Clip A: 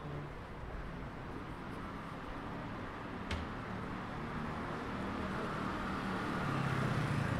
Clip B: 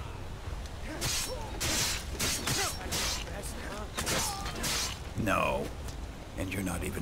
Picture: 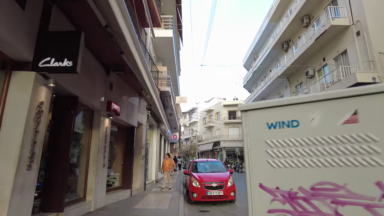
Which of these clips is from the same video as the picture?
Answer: A